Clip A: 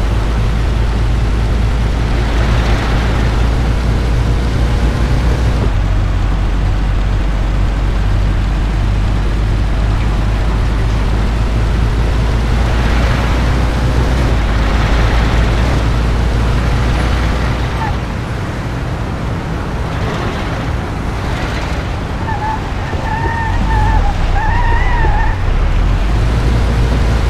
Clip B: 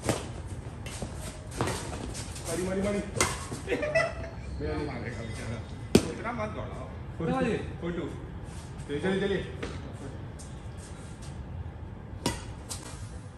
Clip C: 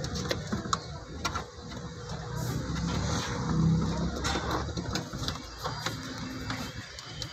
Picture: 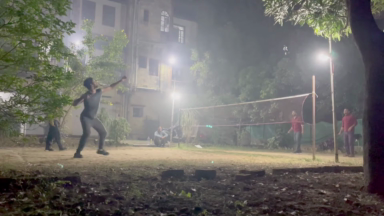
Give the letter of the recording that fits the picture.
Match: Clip B